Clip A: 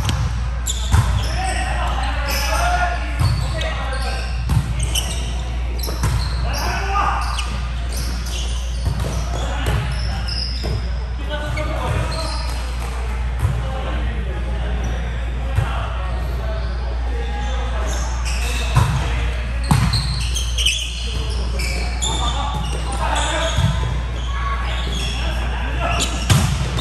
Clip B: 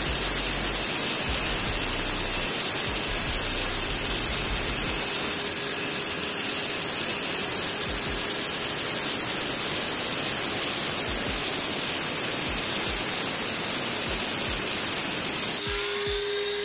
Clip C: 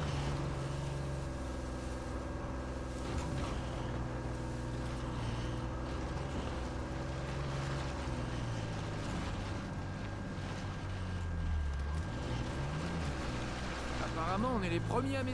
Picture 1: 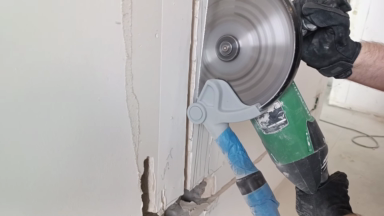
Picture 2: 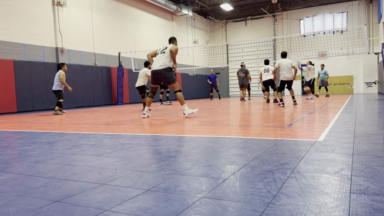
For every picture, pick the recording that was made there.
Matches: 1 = B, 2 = A